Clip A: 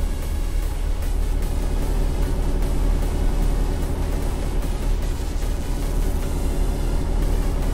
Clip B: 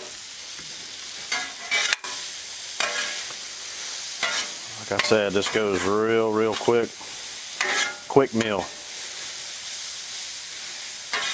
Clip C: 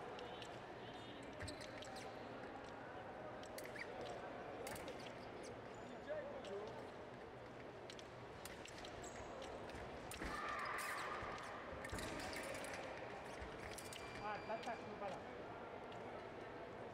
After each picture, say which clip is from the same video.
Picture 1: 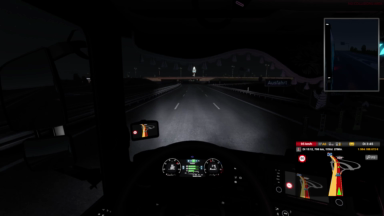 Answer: A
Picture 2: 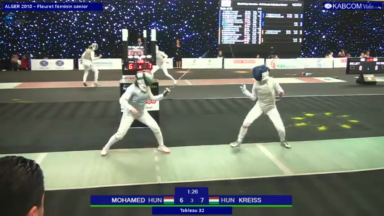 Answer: C